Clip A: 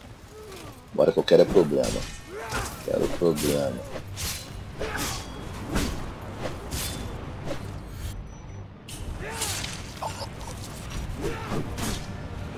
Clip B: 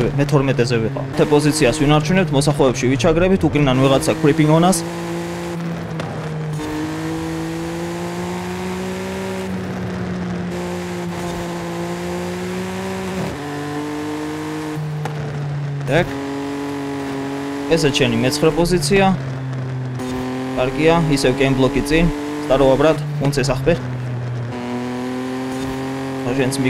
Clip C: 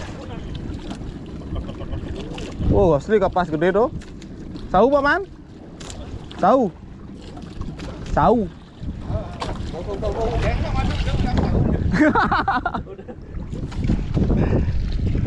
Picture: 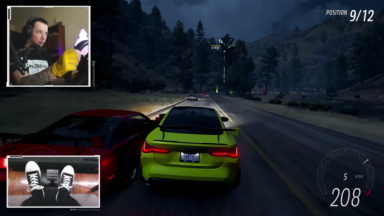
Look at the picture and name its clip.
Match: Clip B